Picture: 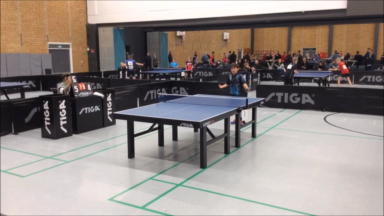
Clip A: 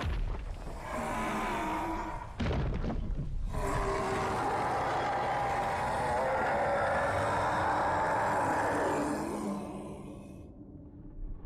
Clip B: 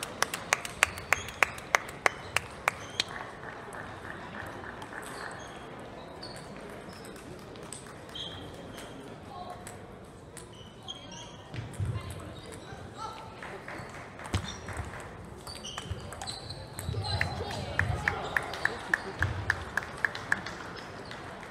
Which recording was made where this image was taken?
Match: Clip B